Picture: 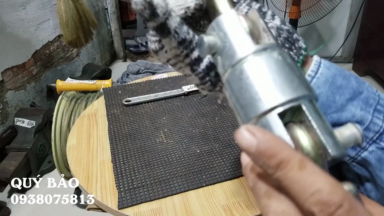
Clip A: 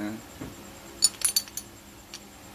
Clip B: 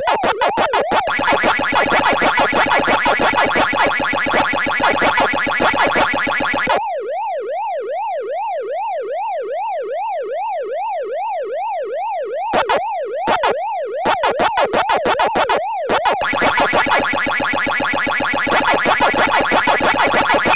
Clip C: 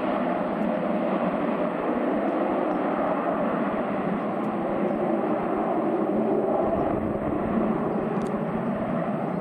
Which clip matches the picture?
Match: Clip A